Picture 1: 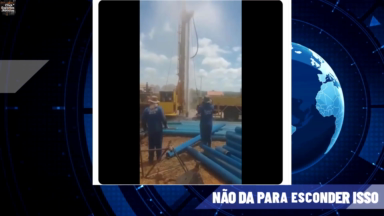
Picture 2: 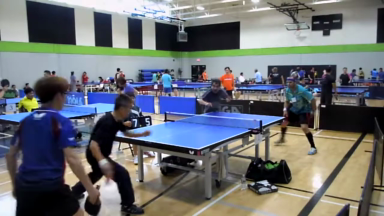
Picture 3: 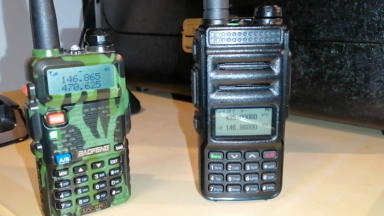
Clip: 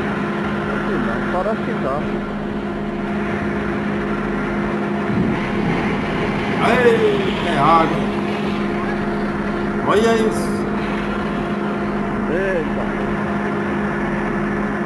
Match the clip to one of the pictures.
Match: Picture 1